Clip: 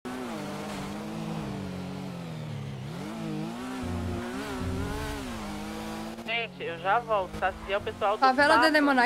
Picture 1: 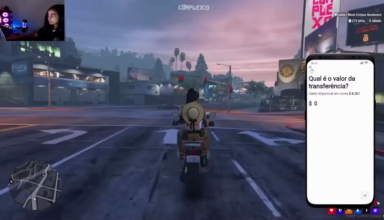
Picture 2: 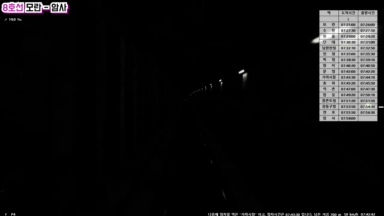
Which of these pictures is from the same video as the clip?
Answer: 1